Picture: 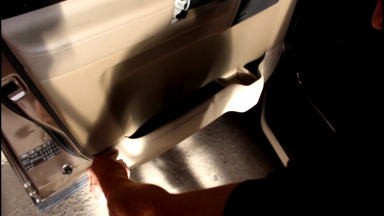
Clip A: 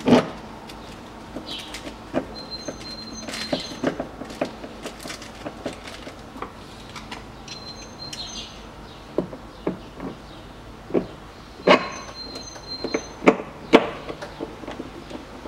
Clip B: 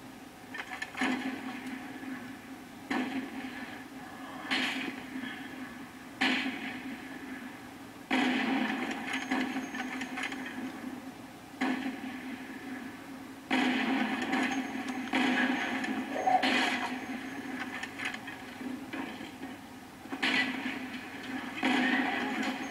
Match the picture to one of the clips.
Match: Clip A